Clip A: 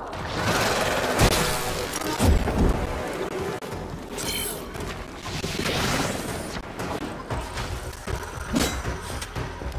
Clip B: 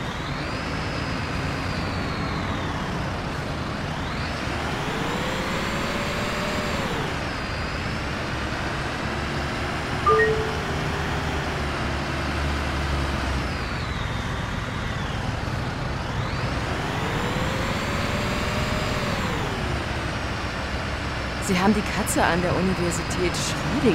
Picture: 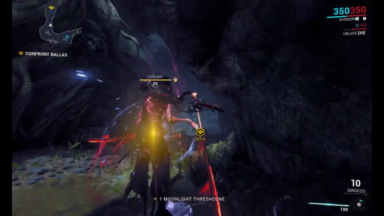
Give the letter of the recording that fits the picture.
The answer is A